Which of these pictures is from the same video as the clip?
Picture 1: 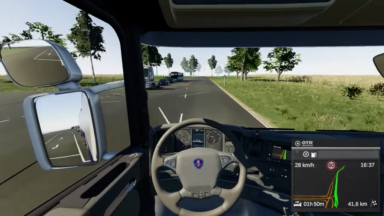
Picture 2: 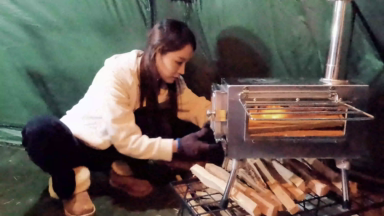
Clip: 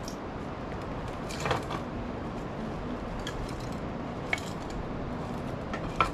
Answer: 2